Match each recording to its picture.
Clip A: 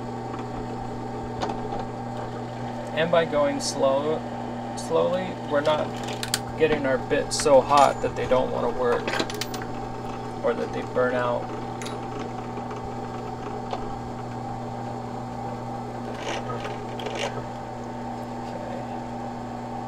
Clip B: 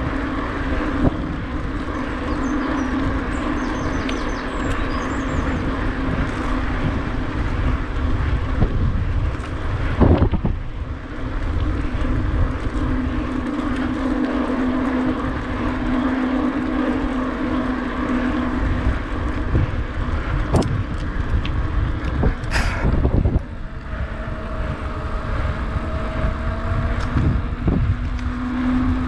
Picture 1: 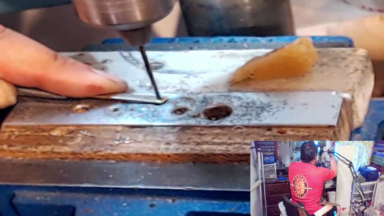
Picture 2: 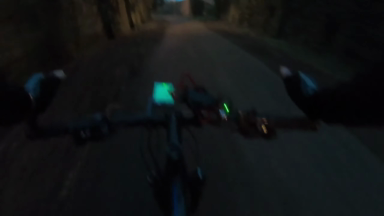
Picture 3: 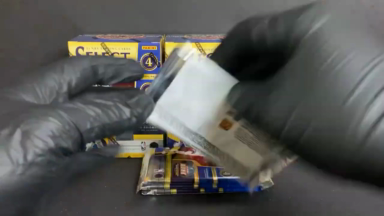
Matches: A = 1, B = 2